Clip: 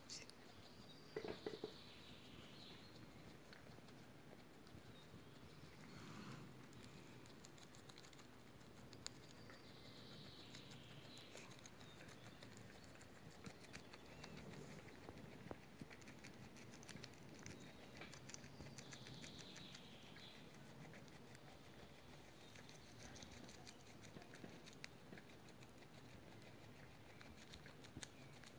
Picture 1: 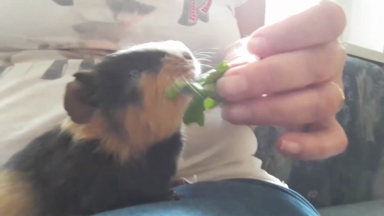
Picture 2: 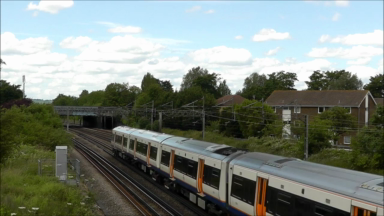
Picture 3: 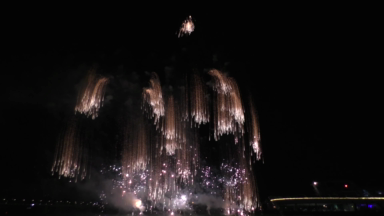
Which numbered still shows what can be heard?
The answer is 1